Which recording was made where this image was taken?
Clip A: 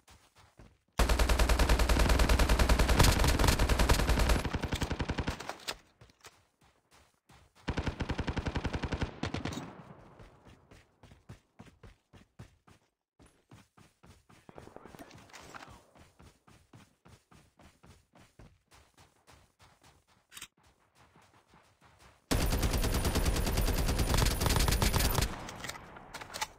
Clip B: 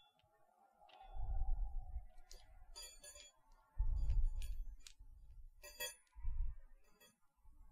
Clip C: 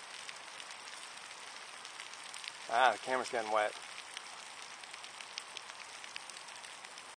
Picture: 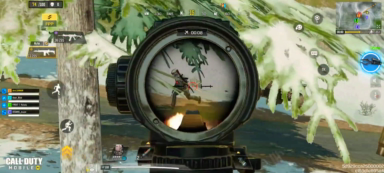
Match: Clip A